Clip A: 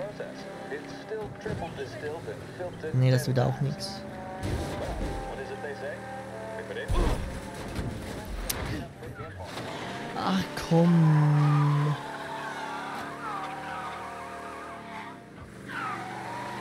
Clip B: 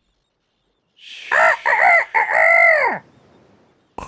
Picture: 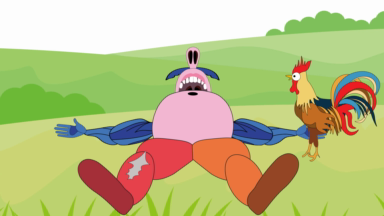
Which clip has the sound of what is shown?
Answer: B